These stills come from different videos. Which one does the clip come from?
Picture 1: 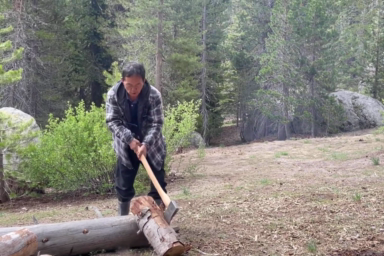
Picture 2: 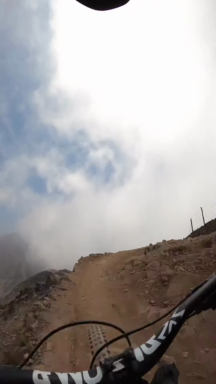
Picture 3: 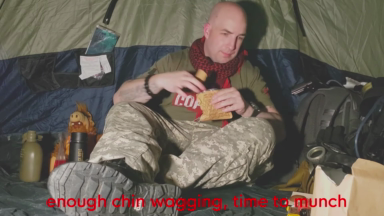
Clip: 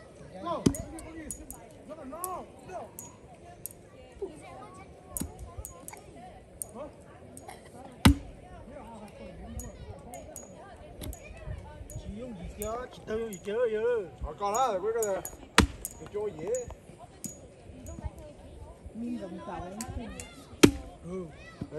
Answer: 1